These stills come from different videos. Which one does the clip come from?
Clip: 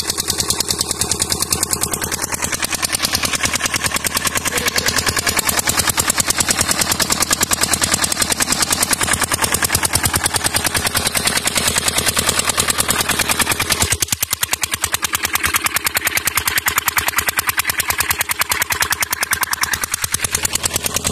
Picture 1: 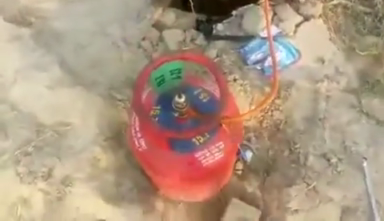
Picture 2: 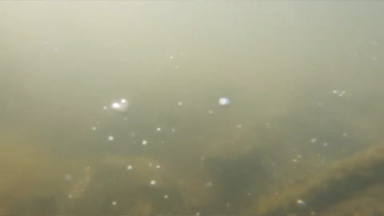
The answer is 1